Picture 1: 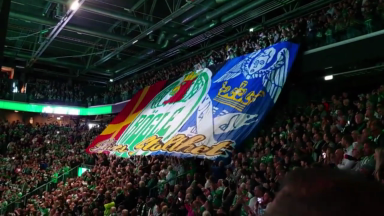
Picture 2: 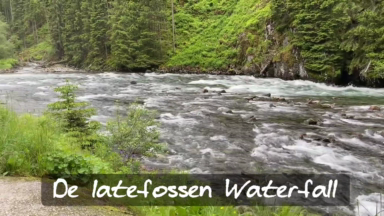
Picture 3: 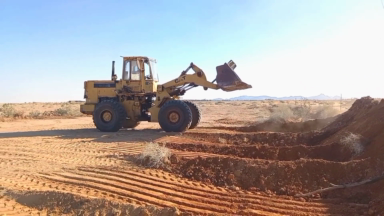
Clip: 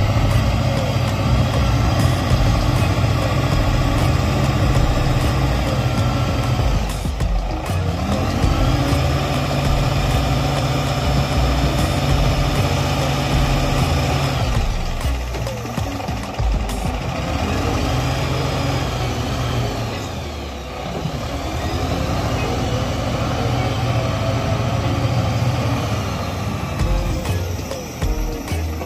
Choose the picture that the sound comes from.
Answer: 3